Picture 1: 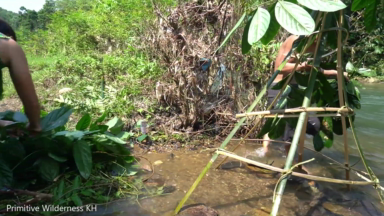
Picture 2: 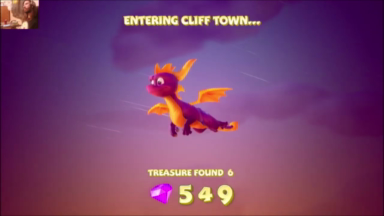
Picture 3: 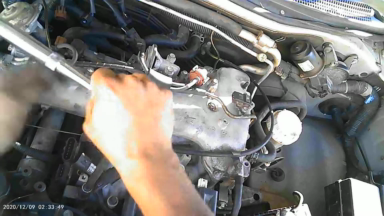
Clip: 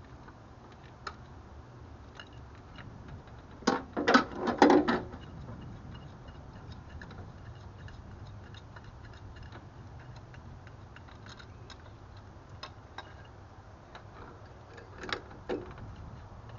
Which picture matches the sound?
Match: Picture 3